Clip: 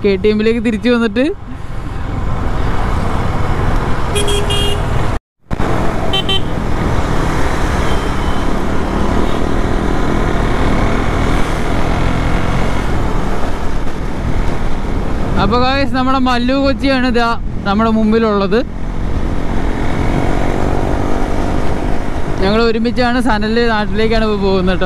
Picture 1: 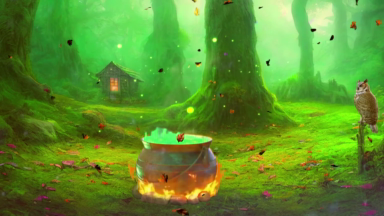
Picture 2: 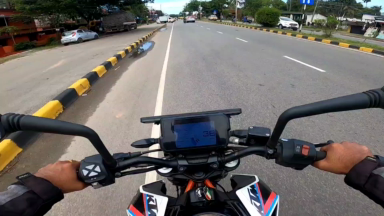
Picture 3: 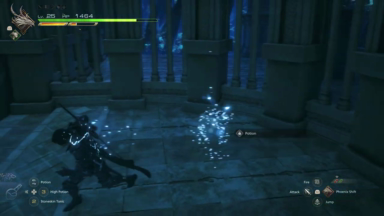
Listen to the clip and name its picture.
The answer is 2